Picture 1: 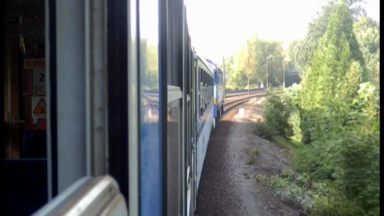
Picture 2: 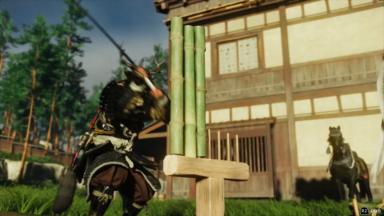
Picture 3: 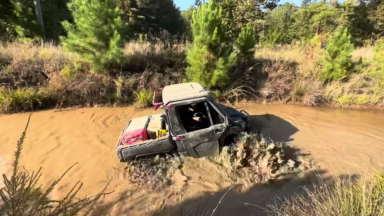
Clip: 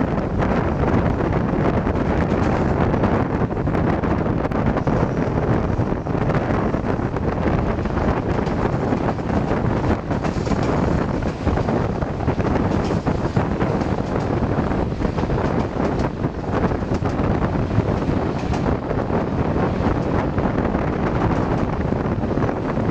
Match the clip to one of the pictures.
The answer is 1